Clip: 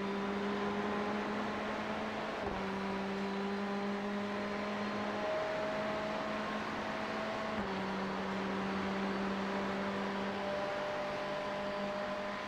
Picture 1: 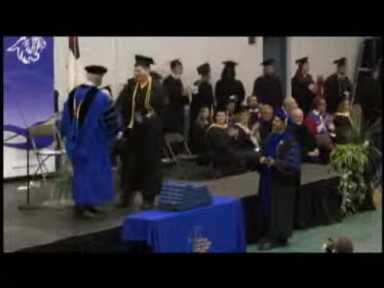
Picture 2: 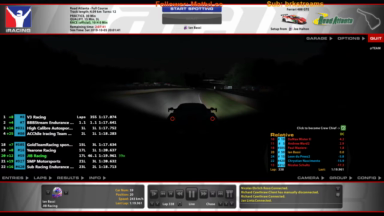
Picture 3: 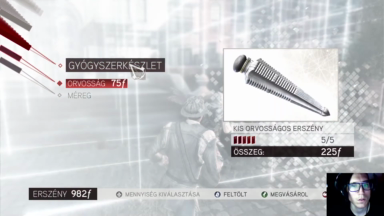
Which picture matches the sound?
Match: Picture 2